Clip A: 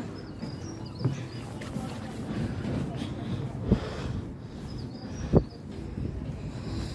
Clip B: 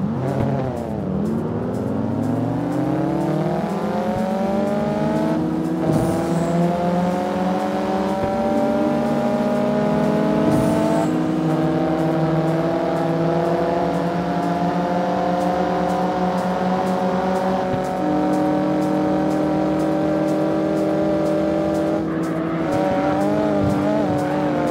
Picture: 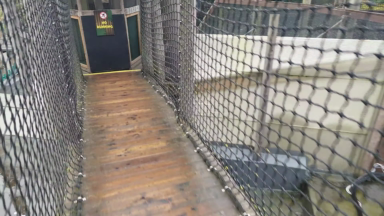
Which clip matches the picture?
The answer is A